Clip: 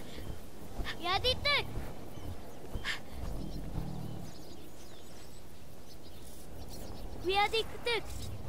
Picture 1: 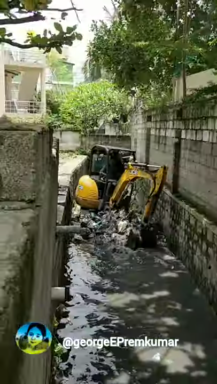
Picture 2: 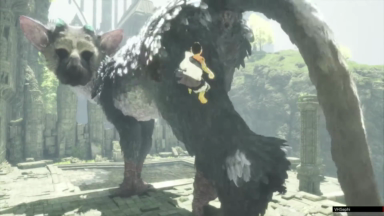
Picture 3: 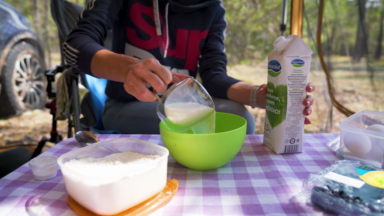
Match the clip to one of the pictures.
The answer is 2